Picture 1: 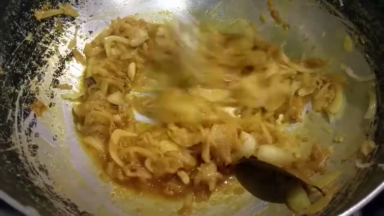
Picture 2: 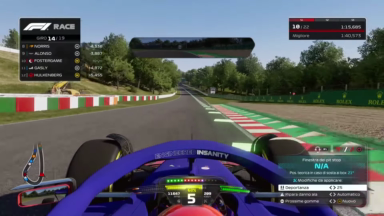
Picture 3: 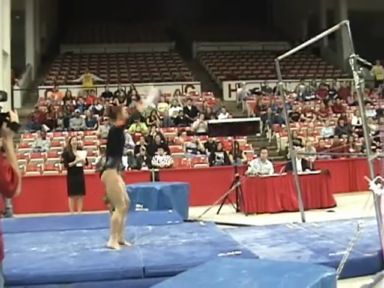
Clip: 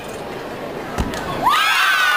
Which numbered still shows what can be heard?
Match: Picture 3